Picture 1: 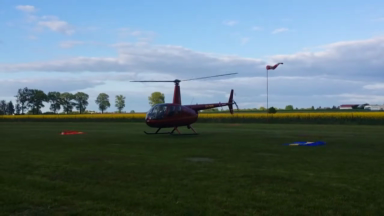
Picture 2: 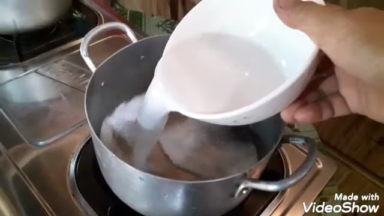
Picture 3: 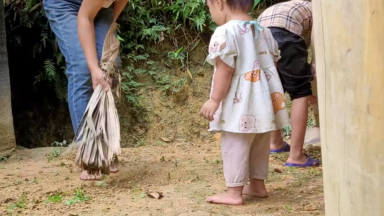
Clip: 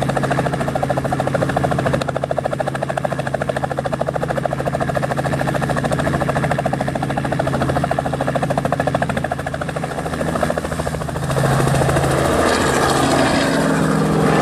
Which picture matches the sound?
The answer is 1